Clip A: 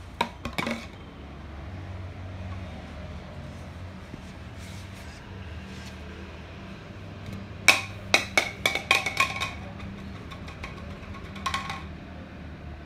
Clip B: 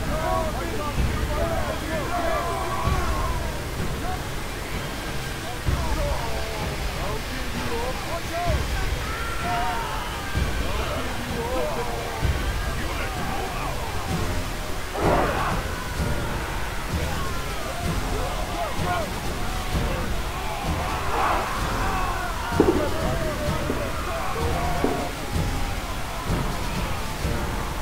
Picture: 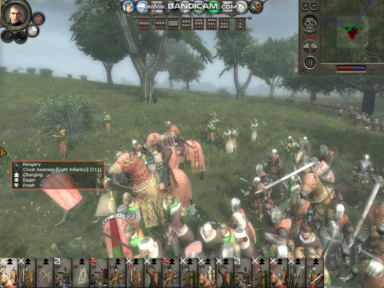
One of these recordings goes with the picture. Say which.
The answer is B